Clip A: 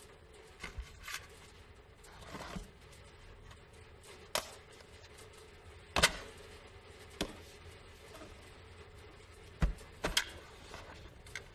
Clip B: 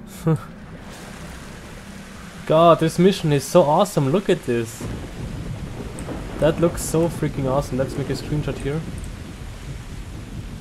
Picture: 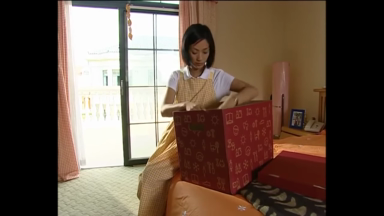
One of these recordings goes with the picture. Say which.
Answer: A